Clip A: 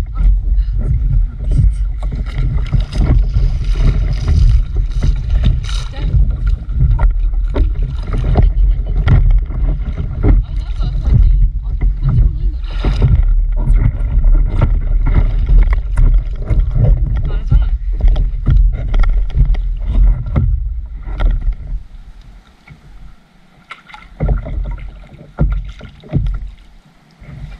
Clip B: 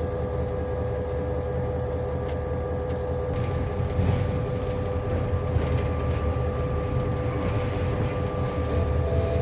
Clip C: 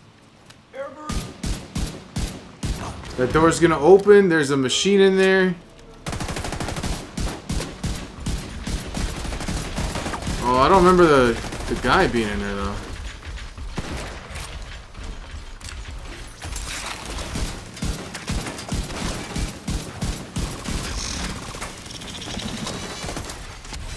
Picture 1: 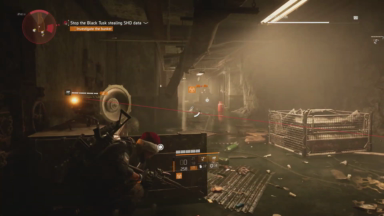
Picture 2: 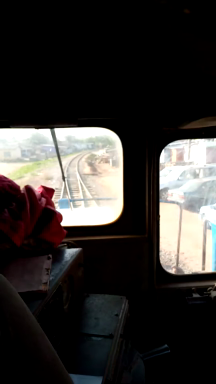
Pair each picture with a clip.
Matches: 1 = C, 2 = B